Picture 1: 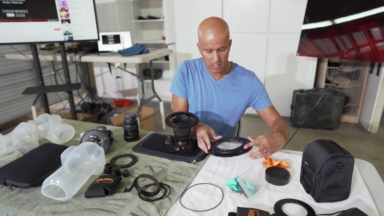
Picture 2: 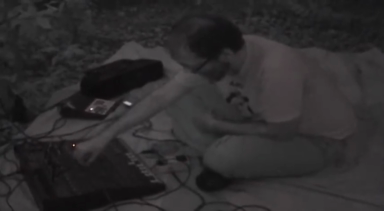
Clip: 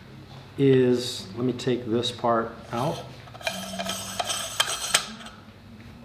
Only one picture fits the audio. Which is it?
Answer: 1